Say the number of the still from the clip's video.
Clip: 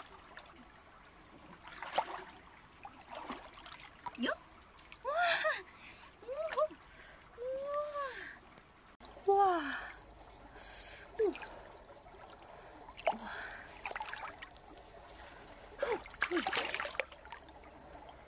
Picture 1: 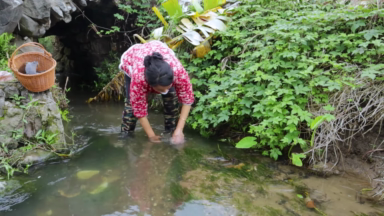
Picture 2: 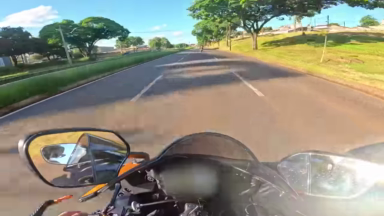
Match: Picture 1